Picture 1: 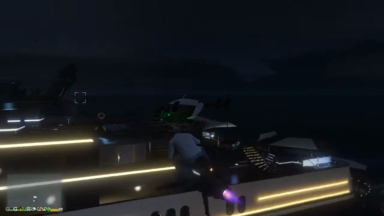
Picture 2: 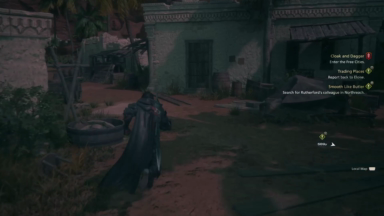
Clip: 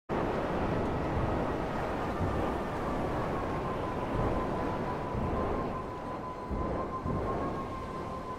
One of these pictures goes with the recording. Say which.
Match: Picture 1